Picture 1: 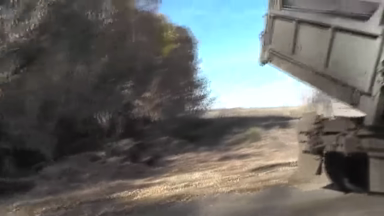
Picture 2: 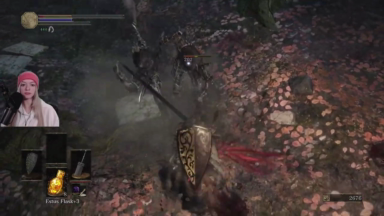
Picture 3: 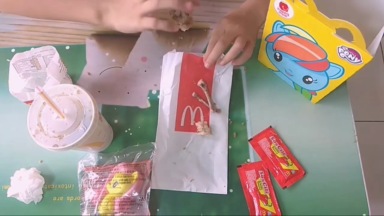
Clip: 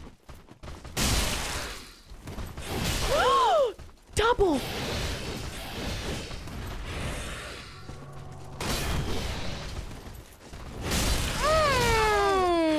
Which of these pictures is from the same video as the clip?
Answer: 2